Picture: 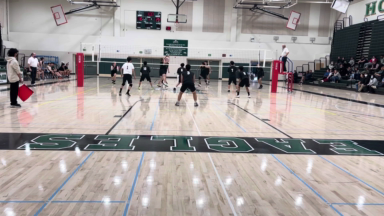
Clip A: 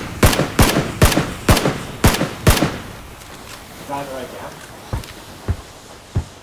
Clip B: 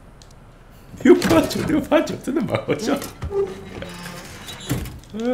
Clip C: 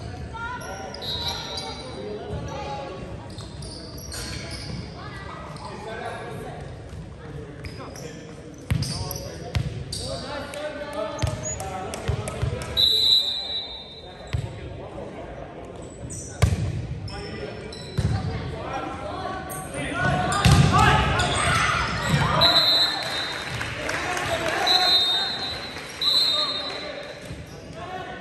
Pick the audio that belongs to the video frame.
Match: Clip C